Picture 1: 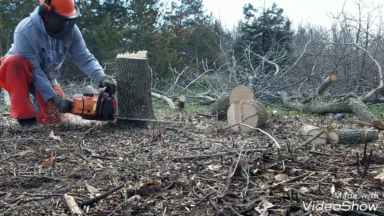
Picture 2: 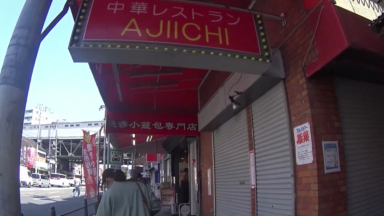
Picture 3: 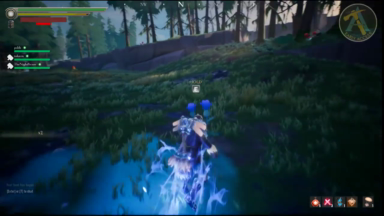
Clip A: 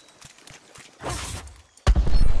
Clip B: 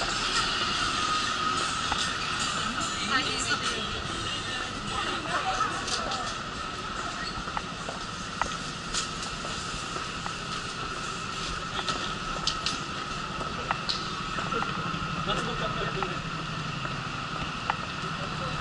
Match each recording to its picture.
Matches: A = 3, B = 2